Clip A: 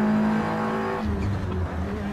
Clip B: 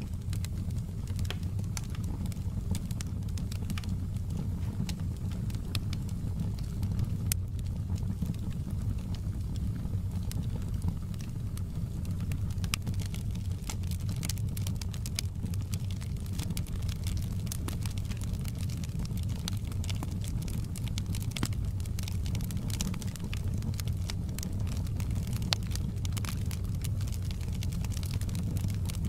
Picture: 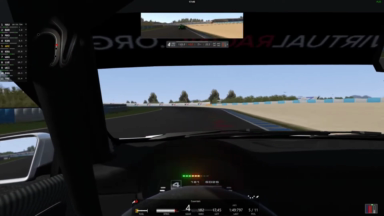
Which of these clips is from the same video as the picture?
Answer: A